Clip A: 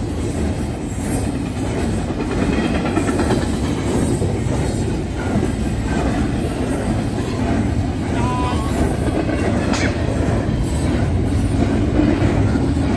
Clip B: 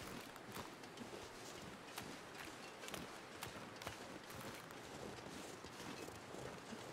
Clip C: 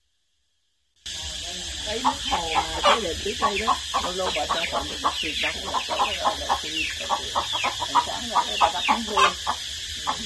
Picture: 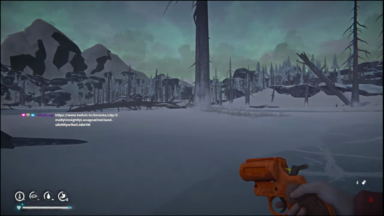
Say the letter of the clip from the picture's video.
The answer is B